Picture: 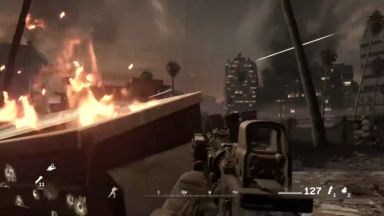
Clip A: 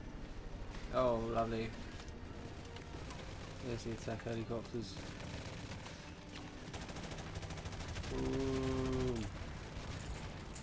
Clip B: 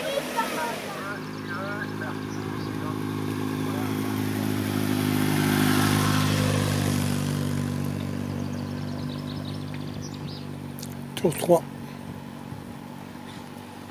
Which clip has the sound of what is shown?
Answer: A